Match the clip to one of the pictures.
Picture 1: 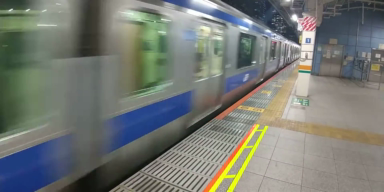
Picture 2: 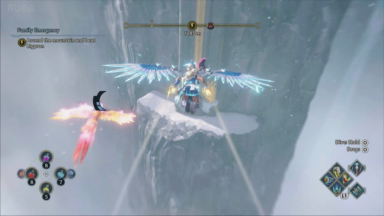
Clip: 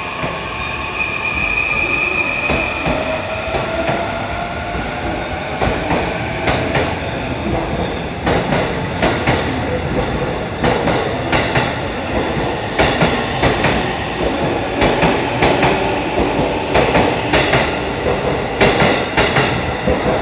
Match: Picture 1